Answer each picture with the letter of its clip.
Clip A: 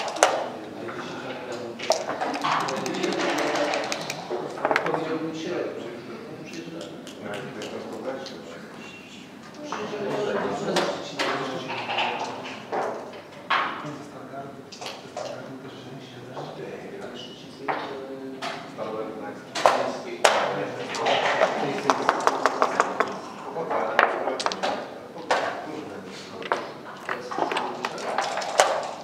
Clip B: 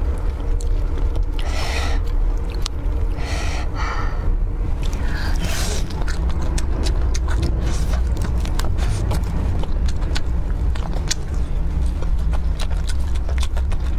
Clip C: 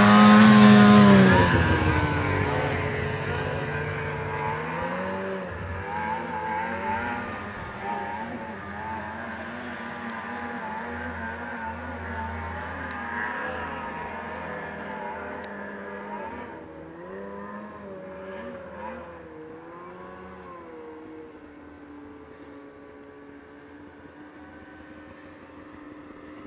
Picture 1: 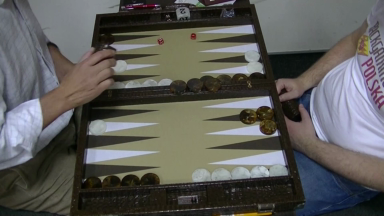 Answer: A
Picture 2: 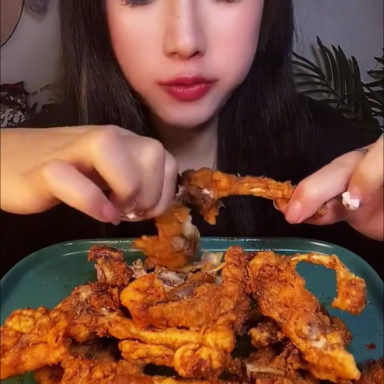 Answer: B